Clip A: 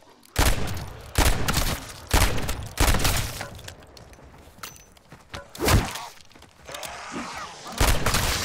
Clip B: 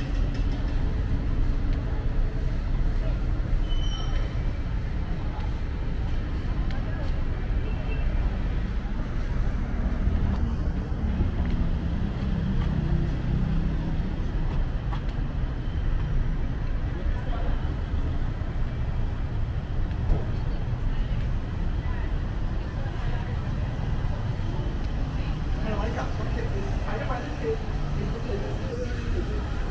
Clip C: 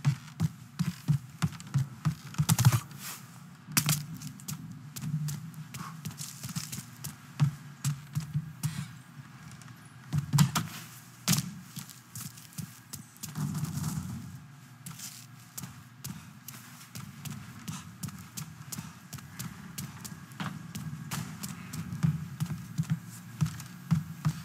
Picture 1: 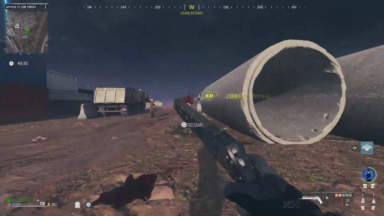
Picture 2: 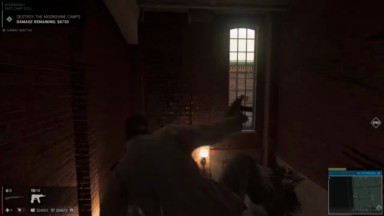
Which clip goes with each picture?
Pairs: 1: A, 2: C